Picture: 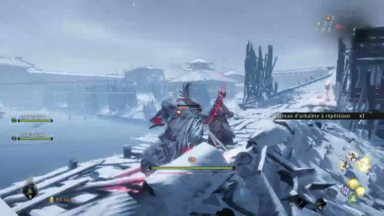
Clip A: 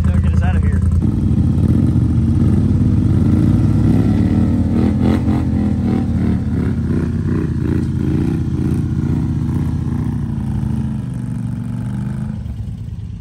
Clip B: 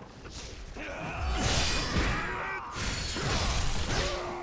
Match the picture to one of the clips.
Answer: B